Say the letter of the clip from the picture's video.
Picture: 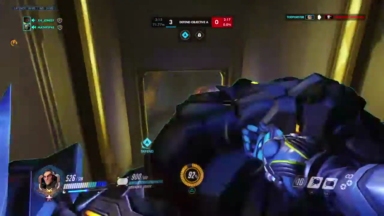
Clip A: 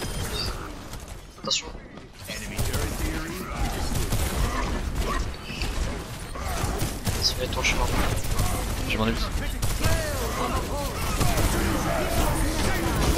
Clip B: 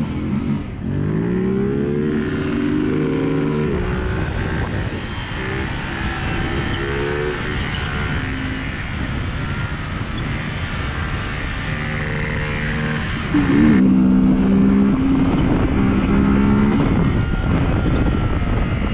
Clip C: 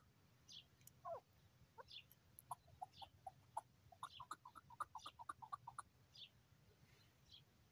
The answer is A